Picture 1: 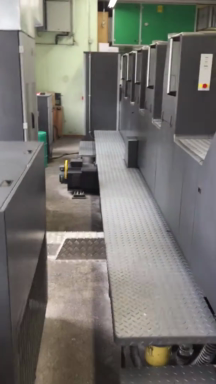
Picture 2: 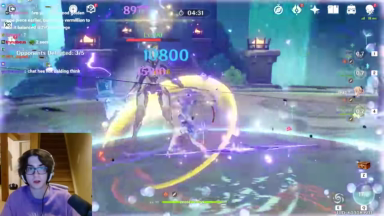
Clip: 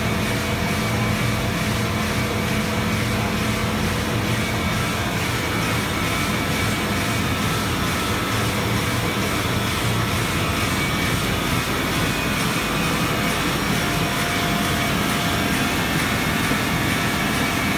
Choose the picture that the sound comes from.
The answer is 1